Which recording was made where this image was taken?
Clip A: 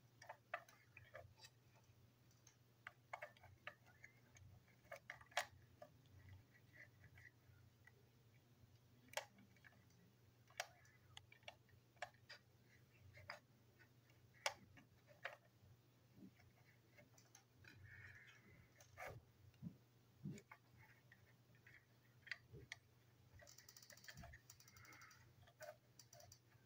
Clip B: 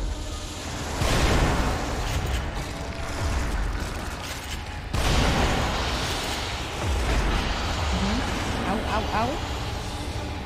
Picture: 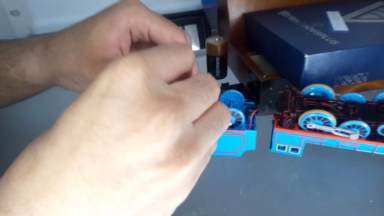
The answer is A